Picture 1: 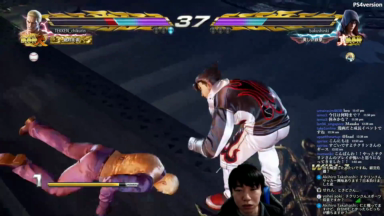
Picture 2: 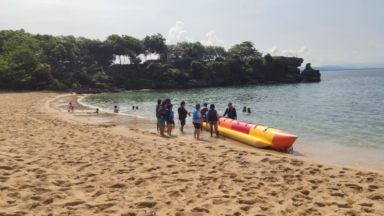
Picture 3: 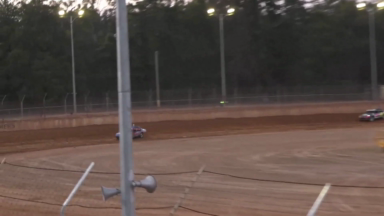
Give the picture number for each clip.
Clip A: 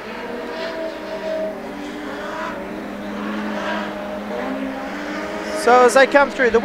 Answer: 3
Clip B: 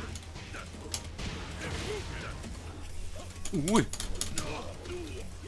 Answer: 1